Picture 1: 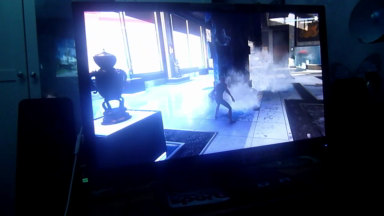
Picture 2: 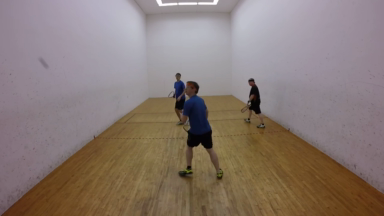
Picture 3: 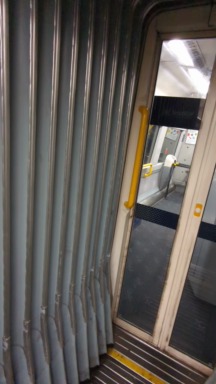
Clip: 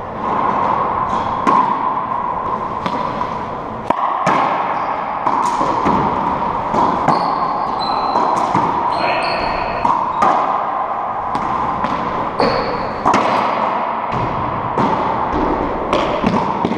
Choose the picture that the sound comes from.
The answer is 2